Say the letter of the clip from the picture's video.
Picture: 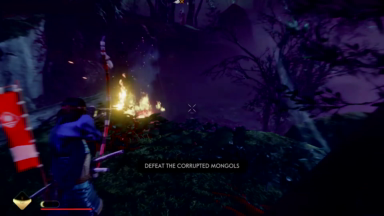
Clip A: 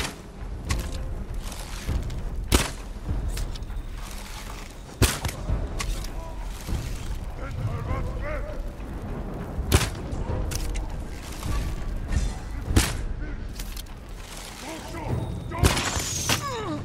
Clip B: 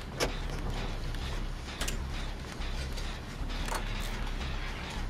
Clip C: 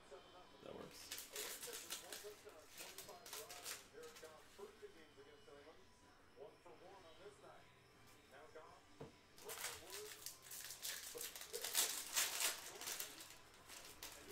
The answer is A